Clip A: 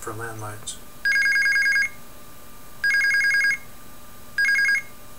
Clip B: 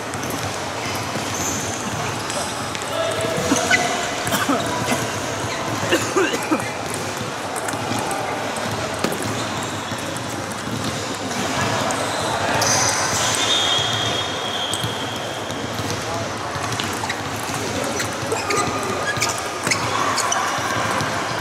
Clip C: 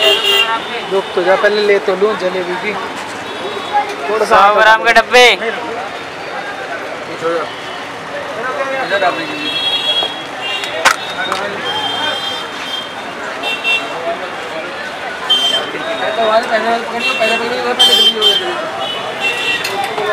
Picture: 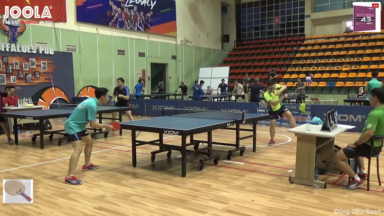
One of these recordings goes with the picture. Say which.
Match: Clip B